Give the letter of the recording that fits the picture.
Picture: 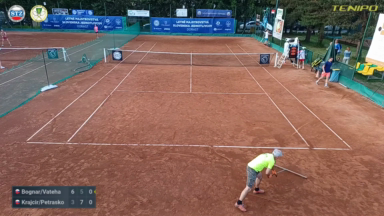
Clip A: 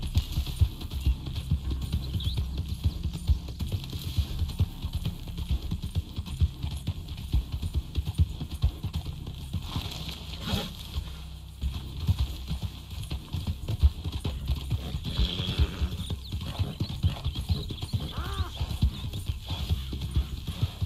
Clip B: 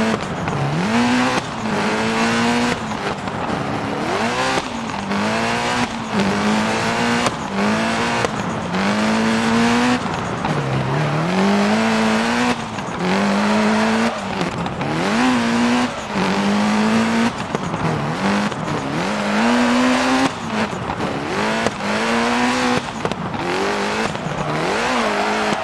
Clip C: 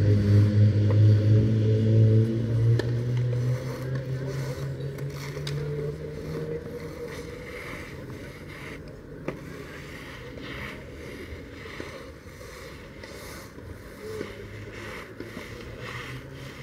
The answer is C